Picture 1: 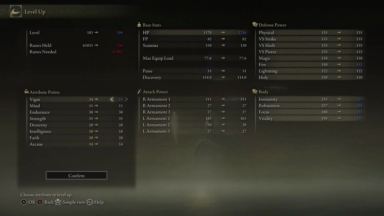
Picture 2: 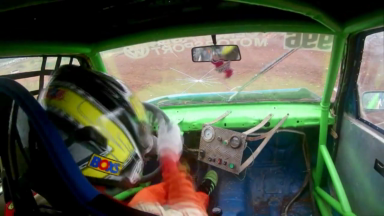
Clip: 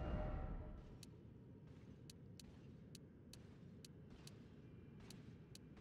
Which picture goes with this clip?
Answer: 1